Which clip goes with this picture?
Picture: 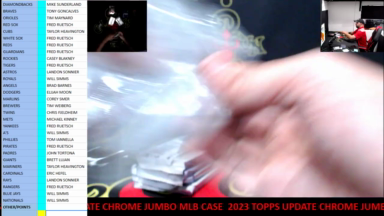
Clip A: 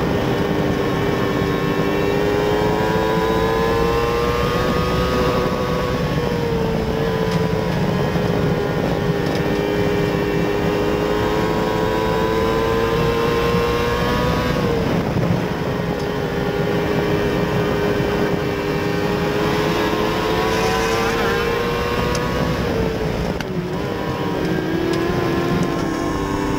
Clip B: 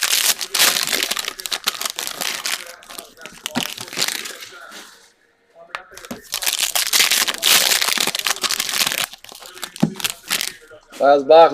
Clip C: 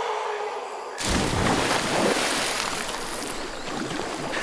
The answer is B